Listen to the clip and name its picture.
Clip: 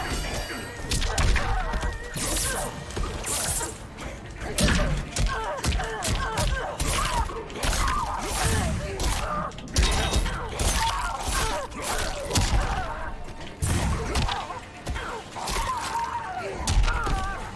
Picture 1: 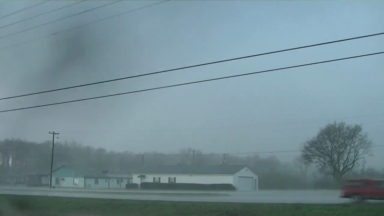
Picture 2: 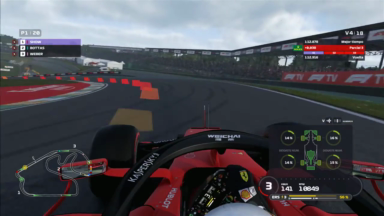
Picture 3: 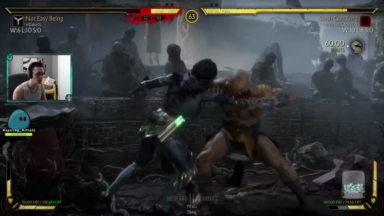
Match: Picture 3